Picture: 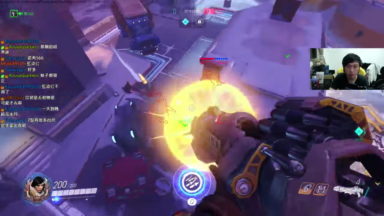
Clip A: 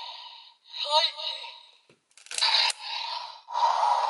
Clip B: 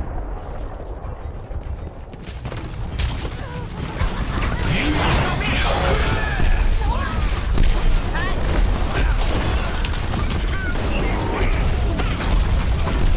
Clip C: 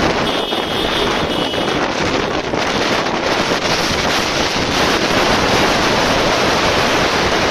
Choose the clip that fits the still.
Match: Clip B